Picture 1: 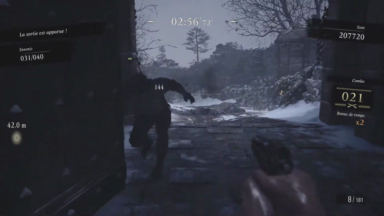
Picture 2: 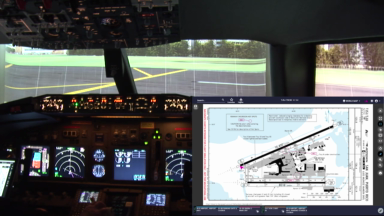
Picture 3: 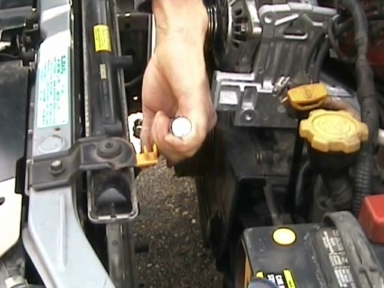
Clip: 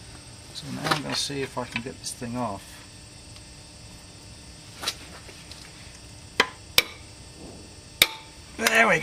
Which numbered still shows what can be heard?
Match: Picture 3